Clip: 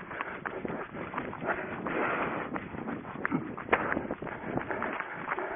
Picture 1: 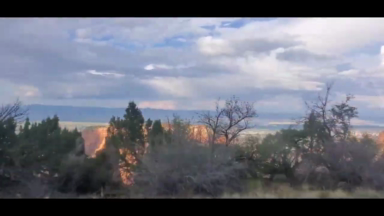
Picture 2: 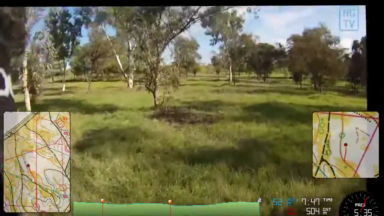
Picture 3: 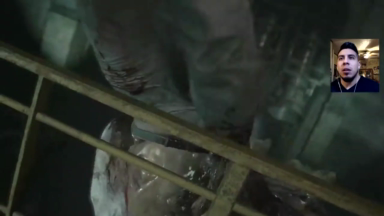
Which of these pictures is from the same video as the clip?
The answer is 2